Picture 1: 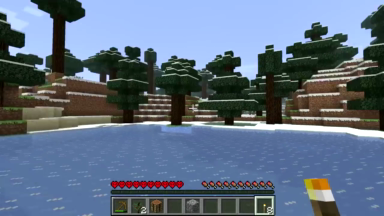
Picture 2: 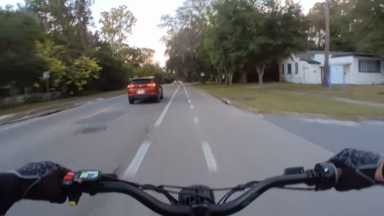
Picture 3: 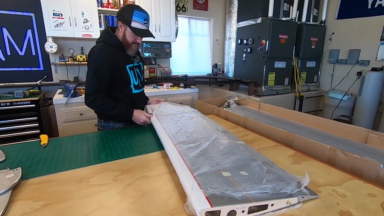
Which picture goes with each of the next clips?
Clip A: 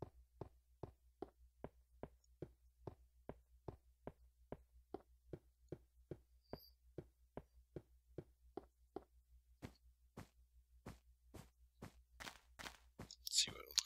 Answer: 1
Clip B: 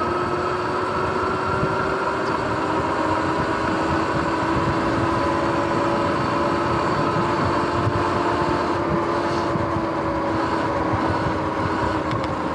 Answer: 2